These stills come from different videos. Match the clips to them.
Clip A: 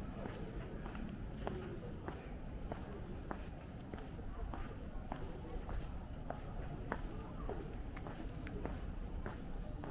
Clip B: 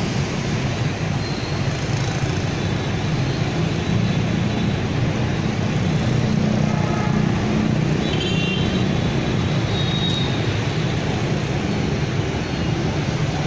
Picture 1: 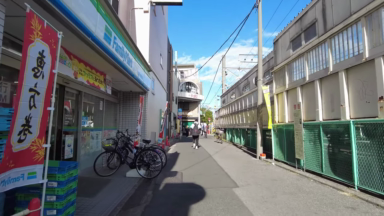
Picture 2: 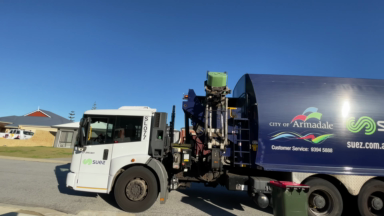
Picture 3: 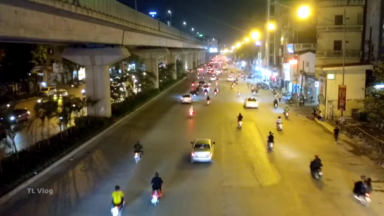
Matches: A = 1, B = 3